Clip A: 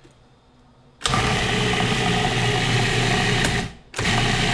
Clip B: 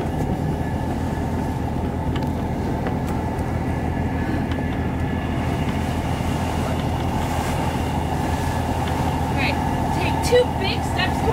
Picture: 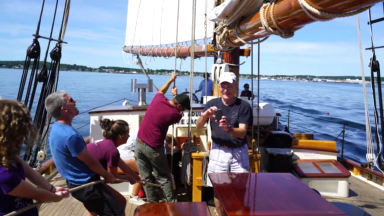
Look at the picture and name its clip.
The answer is B